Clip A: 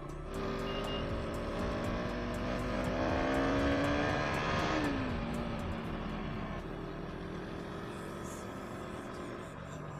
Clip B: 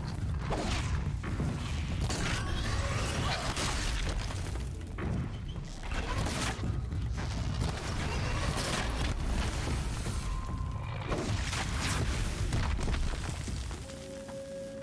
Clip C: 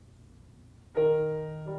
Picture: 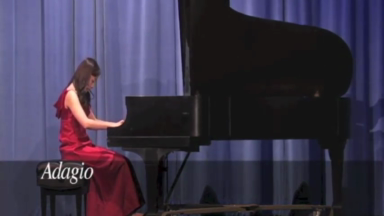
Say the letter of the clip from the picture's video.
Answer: C